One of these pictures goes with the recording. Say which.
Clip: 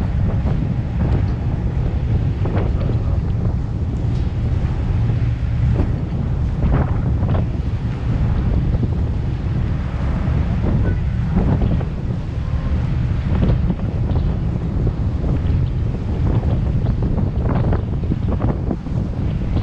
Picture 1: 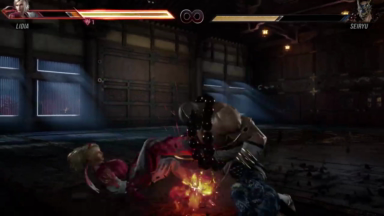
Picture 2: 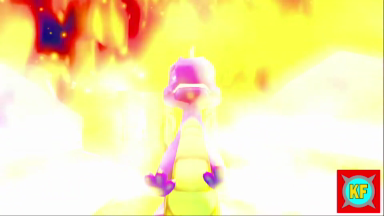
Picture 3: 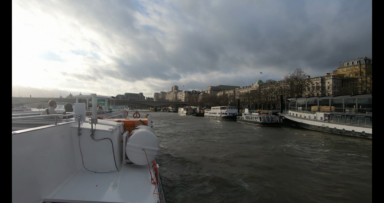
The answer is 3